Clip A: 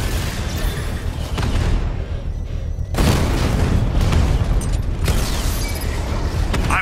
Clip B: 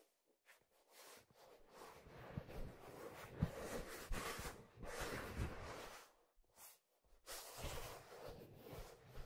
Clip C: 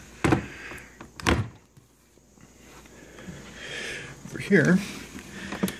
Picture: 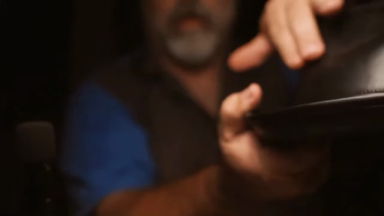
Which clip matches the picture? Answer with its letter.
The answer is B